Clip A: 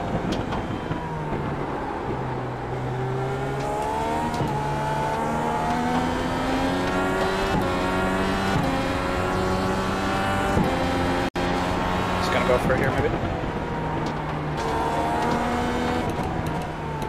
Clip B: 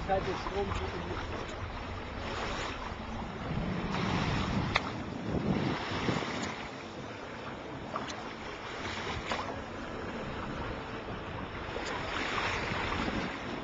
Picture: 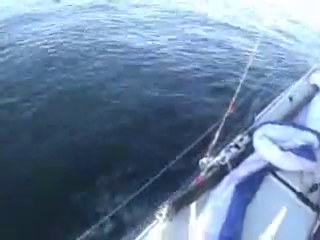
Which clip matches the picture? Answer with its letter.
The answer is B